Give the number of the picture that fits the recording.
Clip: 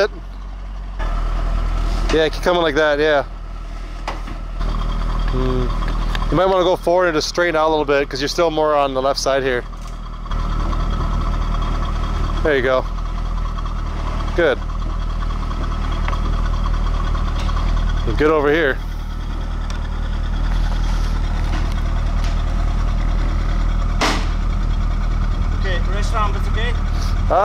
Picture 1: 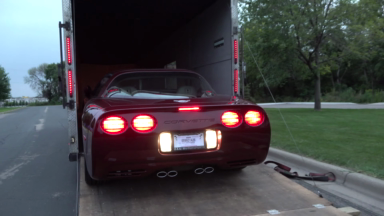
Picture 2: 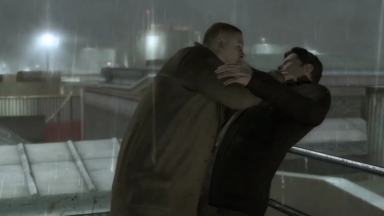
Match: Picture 1